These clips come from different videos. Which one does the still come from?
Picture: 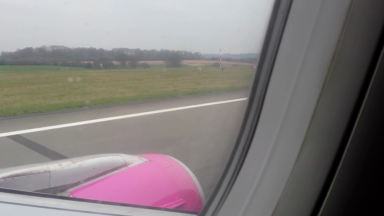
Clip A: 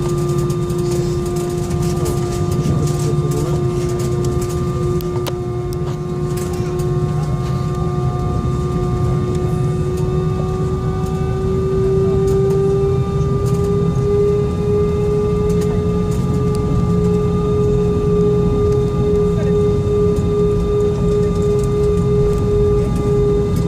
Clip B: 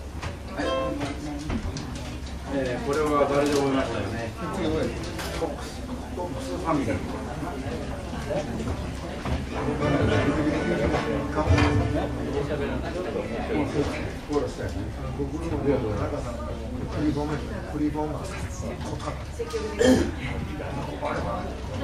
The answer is A